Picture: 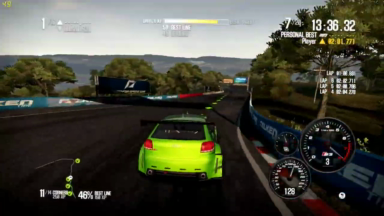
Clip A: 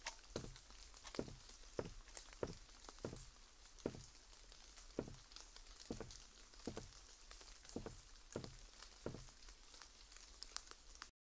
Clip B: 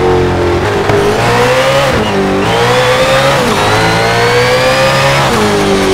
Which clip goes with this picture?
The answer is B